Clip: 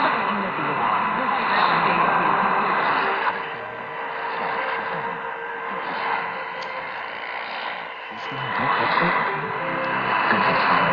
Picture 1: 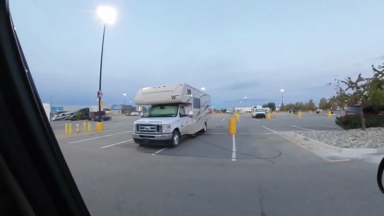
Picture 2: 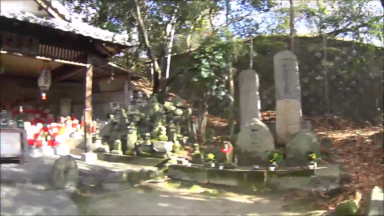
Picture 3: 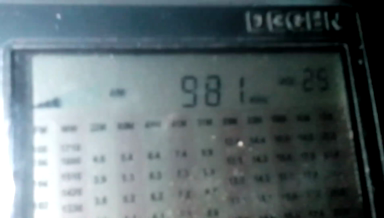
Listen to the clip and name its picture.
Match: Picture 3